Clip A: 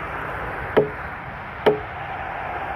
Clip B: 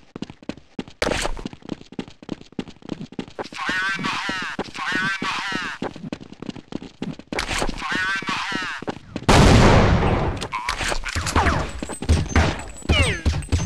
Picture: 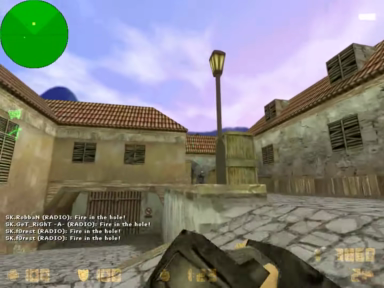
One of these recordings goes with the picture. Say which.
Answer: B